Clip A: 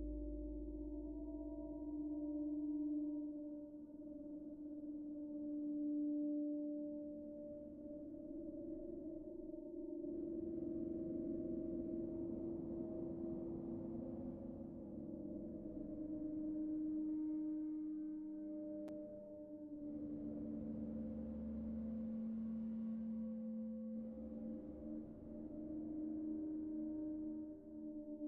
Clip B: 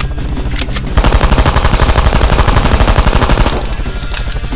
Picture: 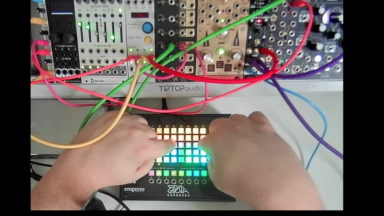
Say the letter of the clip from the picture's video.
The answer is A